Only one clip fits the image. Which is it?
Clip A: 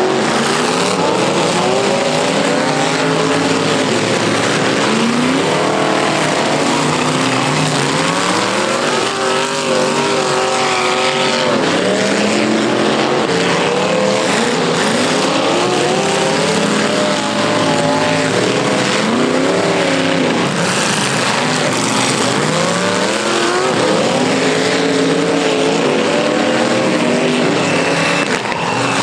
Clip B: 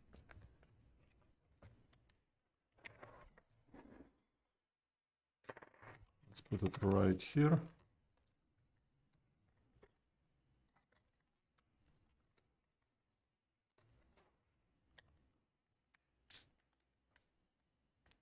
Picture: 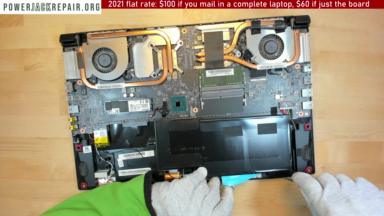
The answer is B